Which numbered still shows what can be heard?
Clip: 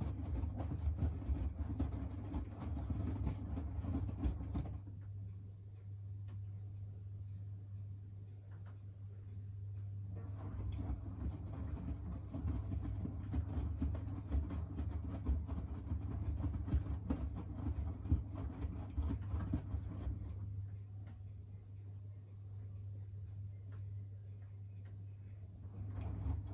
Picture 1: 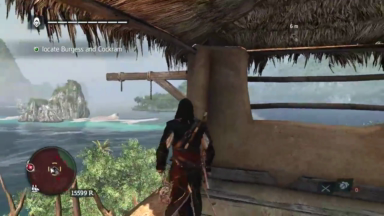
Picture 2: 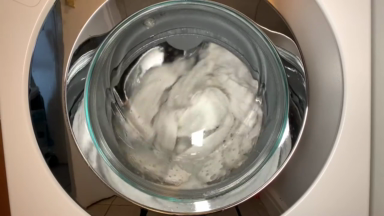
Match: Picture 2